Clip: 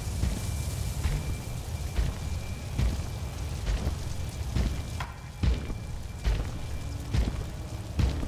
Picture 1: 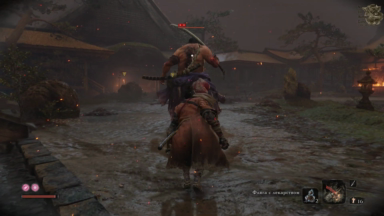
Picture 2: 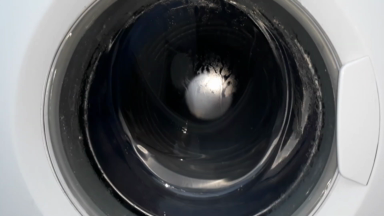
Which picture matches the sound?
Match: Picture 1